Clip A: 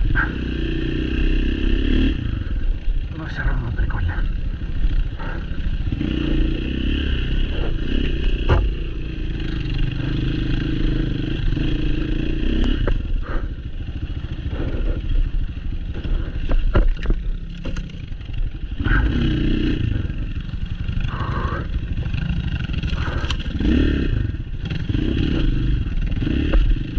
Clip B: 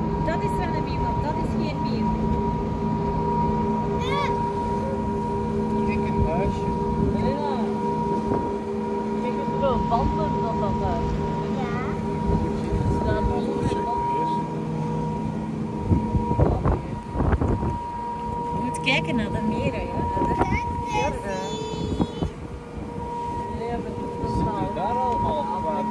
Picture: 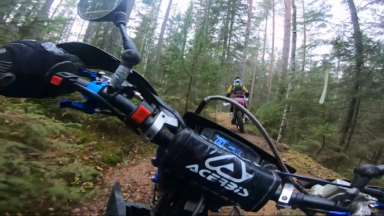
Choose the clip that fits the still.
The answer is A